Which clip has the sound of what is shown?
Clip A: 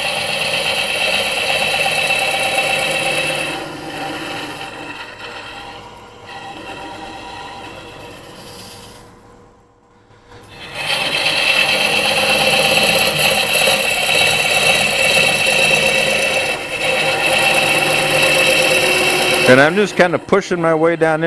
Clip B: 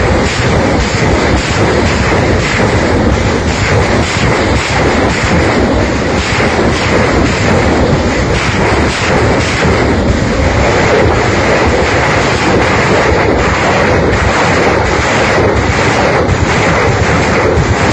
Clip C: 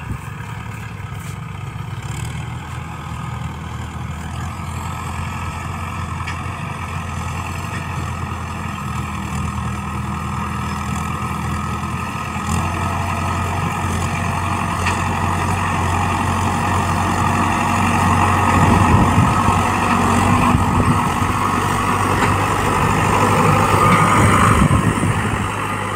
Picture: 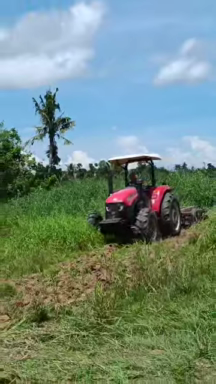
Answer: C